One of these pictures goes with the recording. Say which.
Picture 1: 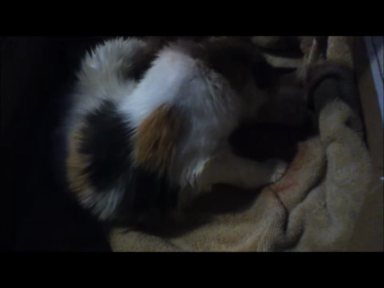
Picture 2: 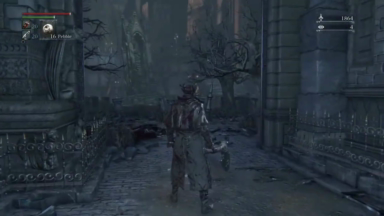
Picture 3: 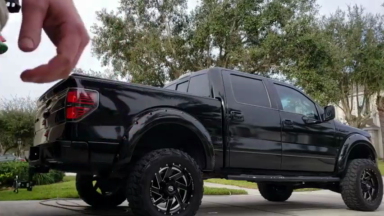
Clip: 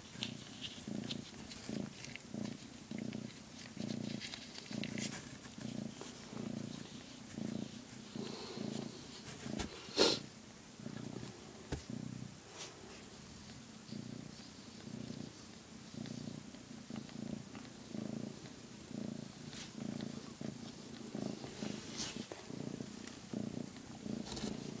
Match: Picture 1